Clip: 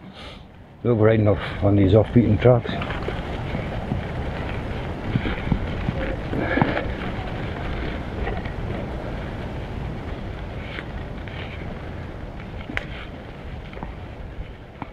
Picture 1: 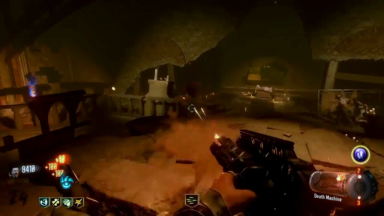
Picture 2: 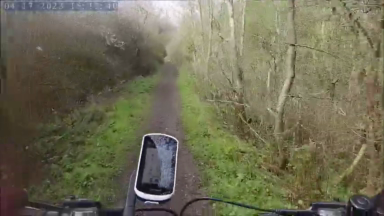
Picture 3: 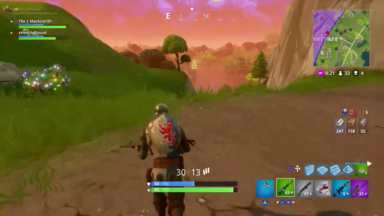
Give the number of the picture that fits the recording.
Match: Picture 2